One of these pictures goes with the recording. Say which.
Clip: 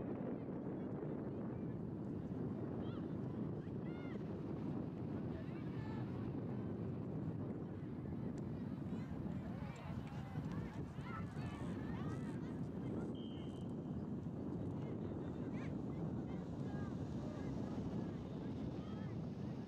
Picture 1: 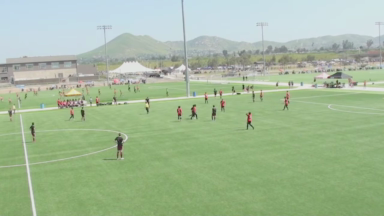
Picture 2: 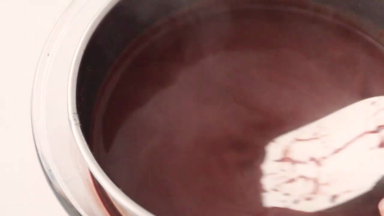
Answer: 1